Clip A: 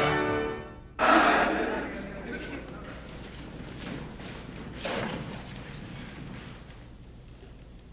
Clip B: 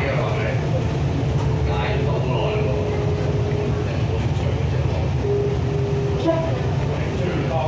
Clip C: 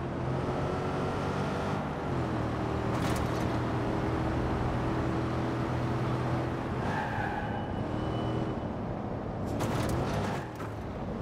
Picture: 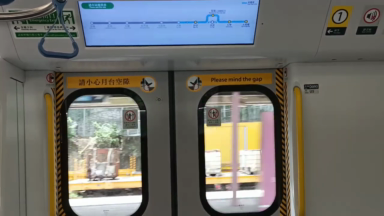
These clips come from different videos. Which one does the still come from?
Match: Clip B